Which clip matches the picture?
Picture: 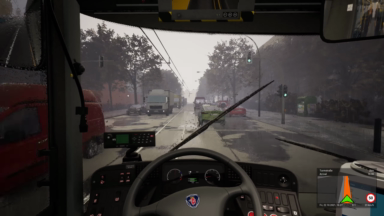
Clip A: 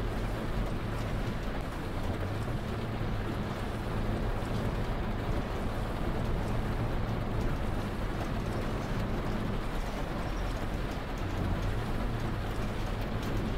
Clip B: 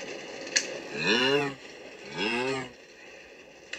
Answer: A